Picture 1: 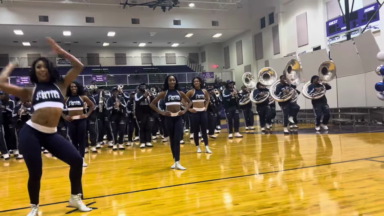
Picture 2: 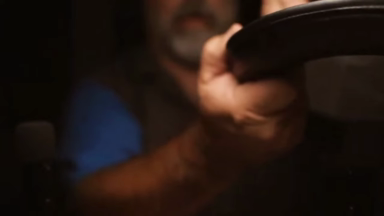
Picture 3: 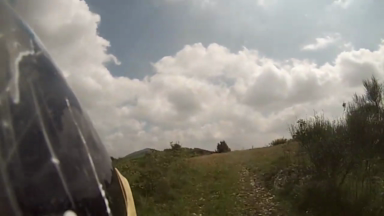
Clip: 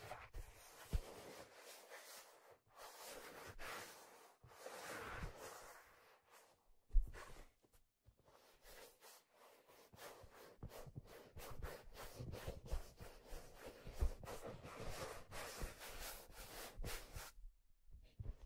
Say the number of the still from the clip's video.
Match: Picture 2